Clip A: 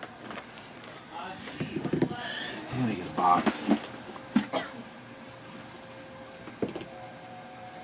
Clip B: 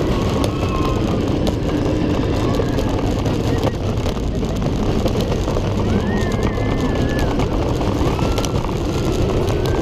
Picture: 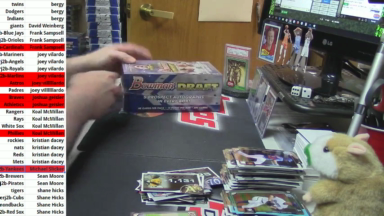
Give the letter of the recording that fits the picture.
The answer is A